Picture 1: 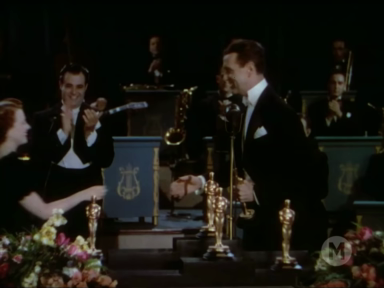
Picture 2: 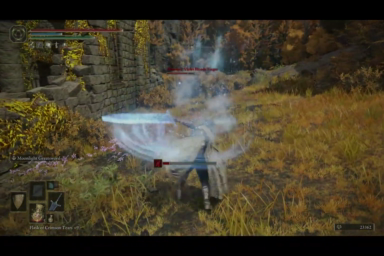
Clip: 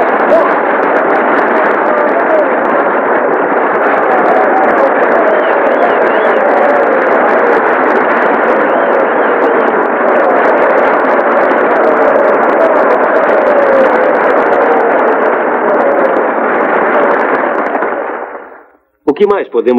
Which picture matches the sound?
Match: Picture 1